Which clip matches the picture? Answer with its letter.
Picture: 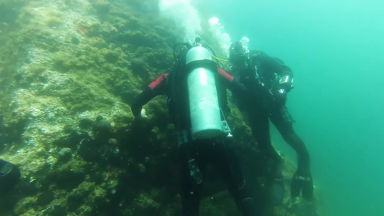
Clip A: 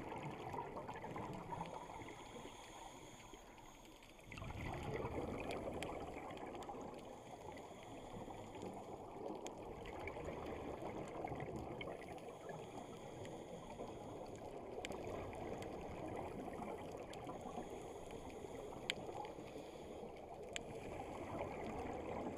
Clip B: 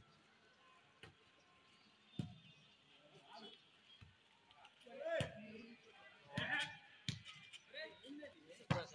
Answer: A